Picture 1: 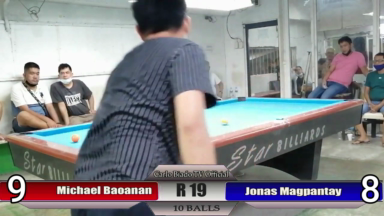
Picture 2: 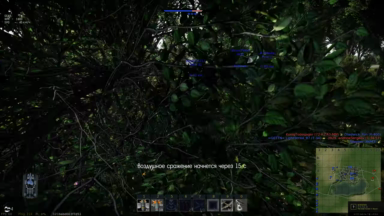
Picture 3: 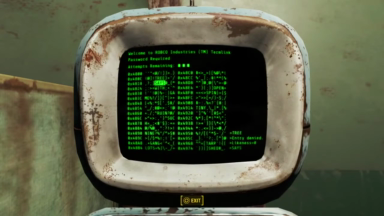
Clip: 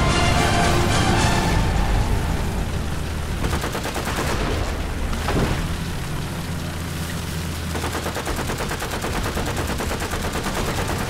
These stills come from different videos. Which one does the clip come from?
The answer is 2